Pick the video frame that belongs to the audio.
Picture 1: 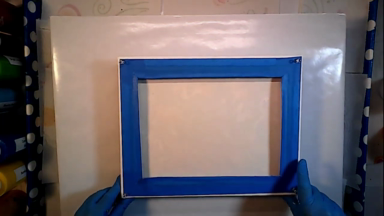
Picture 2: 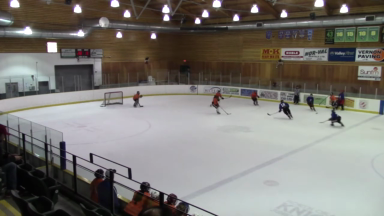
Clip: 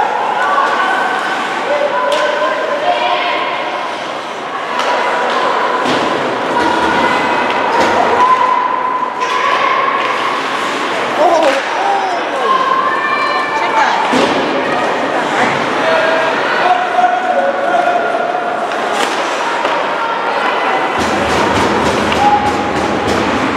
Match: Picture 2